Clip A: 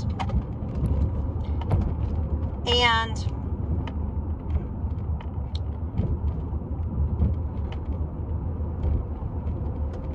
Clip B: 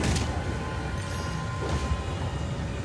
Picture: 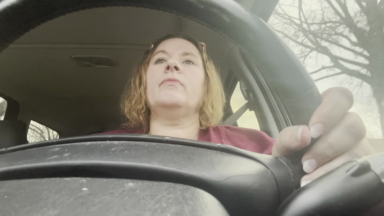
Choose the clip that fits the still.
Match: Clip A